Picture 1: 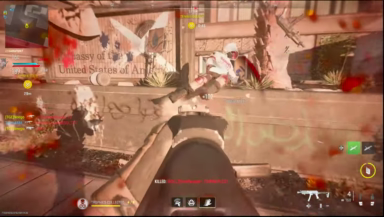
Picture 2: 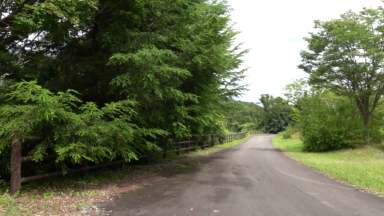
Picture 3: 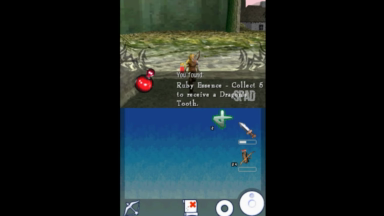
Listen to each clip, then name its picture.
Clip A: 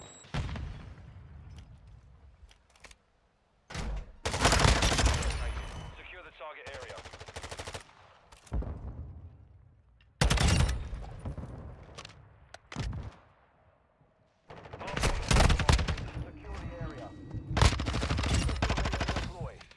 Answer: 1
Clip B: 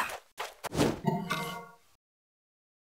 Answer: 3